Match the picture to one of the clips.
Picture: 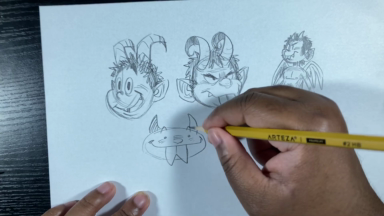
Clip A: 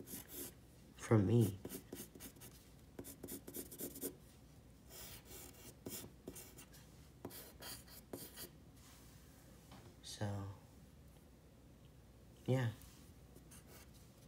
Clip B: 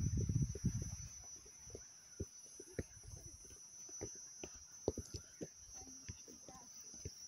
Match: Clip A